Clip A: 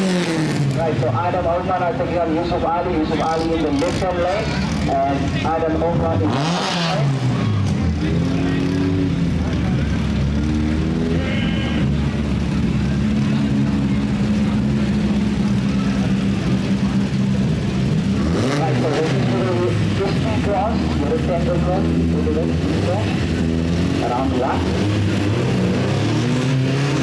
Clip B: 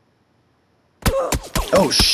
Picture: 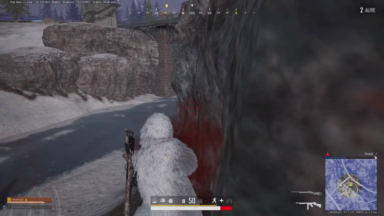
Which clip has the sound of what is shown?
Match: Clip B